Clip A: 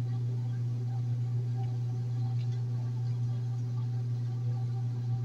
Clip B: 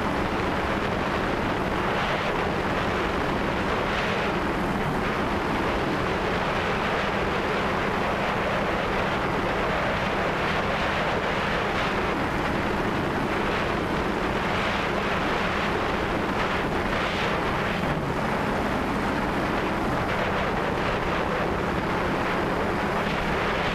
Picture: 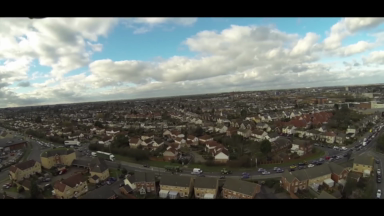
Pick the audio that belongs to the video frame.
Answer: B